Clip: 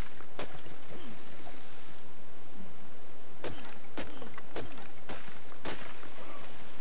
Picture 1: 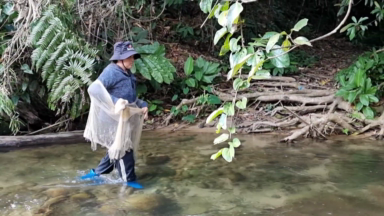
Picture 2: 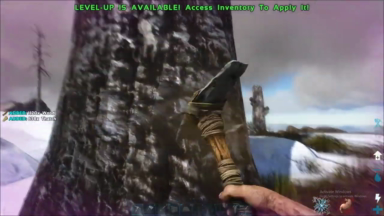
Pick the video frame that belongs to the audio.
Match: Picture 2